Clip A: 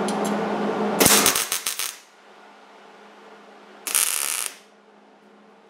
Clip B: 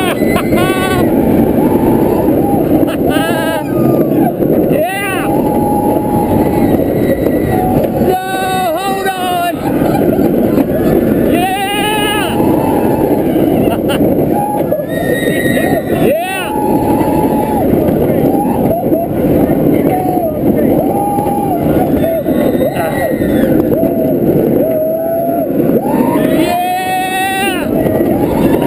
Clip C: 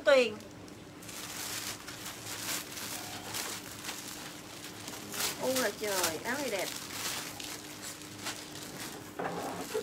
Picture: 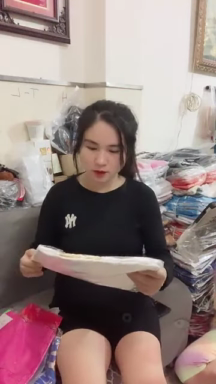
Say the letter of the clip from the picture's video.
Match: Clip C